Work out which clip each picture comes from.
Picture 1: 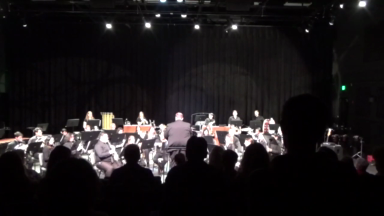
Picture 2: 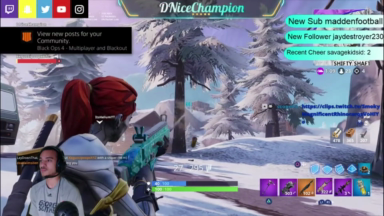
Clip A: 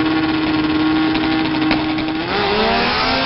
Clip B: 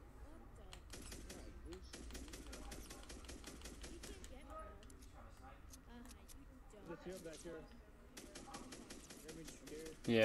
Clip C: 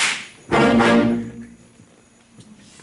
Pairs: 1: C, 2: B